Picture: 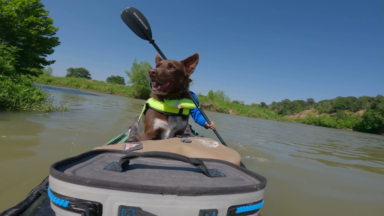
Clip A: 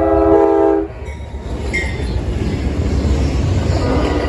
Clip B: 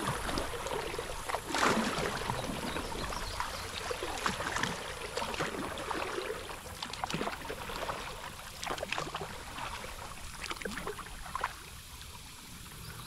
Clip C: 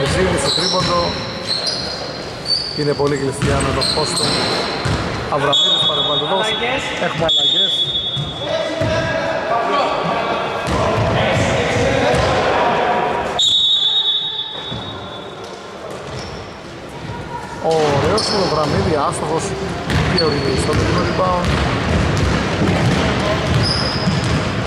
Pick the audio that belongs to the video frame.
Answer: B